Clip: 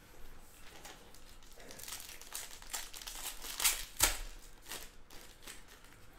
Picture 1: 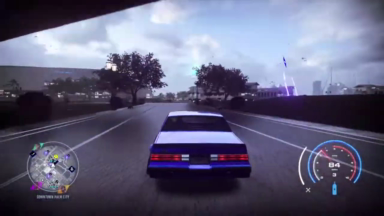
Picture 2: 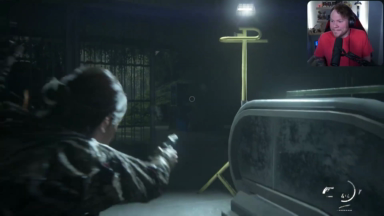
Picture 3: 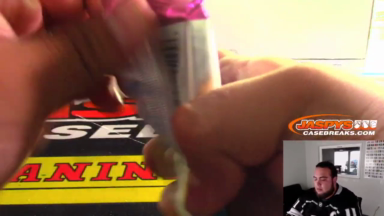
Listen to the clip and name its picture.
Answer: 3